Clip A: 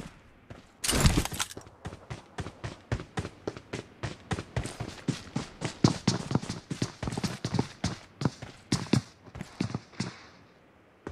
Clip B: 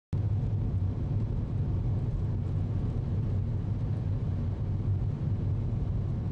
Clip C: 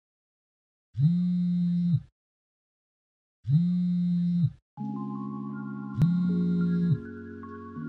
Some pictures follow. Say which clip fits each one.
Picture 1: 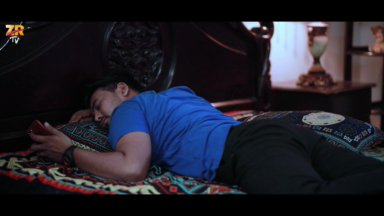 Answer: C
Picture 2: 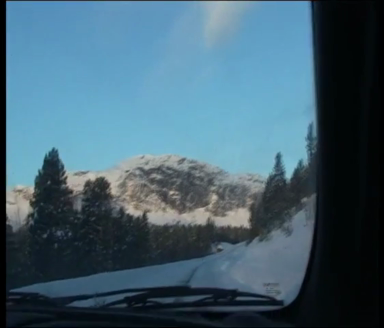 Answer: B